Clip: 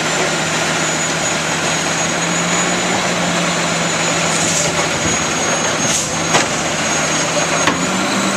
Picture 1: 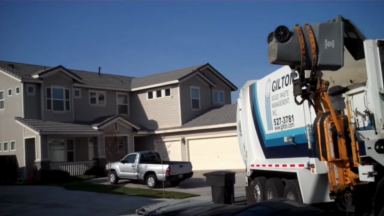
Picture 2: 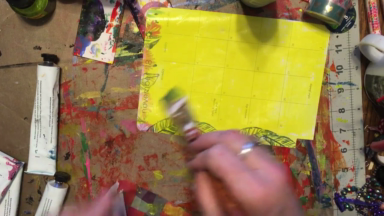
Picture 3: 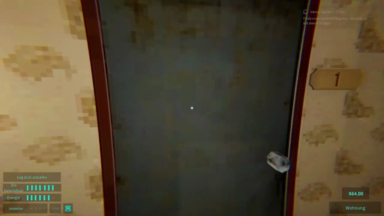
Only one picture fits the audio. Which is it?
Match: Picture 1